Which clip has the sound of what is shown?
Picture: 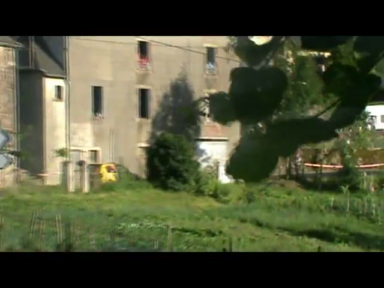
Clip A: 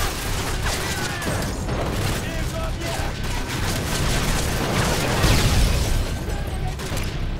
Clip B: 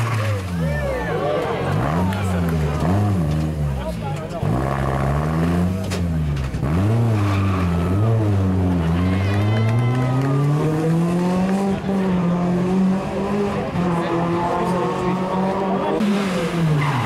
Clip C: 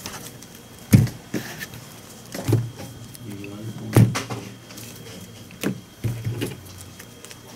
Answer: B